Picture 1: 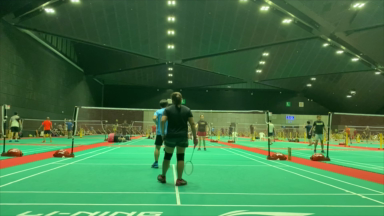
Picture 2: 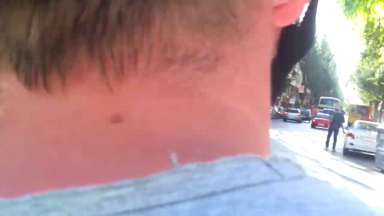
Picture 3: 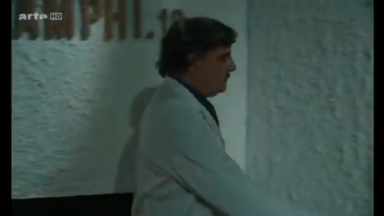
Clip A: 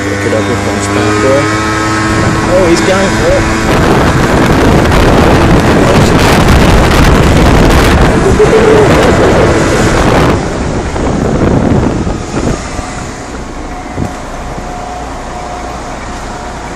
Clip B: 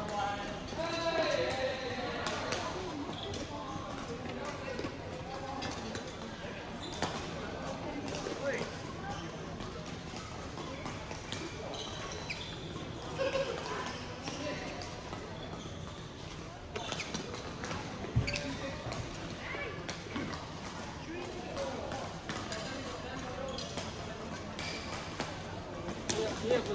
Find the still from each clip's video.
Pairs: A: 2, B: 1